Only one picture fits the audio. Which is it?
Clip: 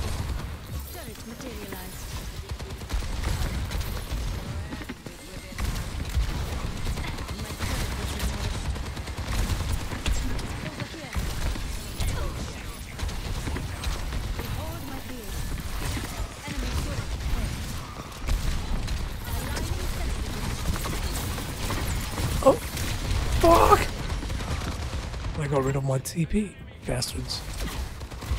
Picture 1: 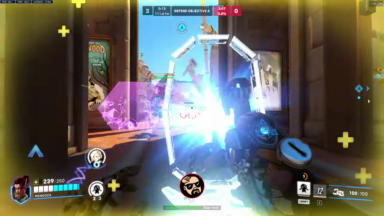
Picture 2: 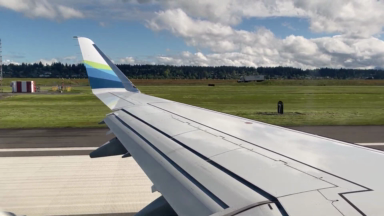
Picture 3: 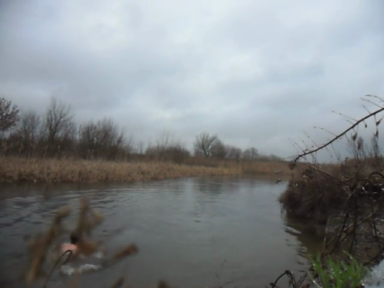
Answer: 1